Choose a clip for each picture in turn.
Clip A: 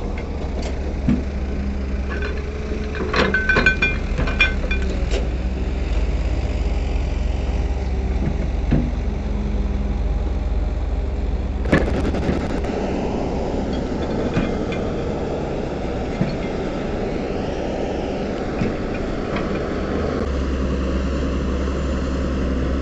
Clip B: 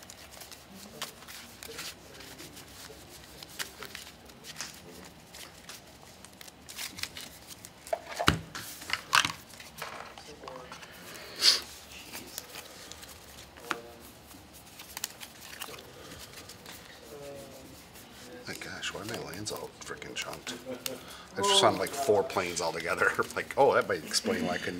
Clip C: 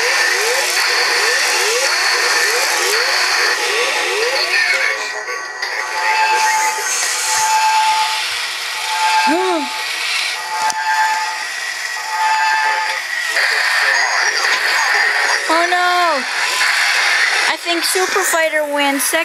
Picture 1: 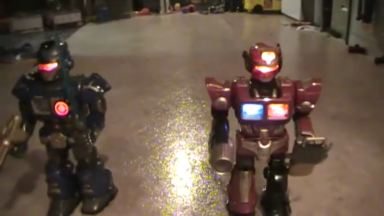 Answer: C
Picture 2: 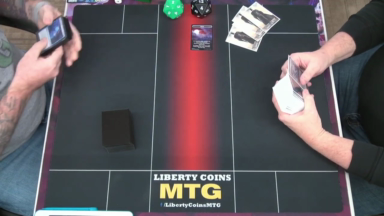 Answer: B